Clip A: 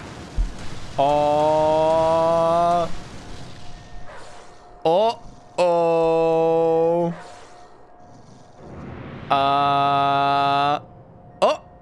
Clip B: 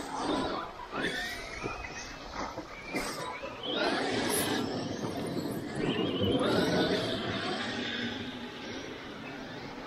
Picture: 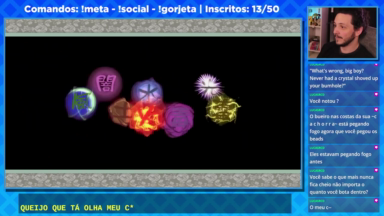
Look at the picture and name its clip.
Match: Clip A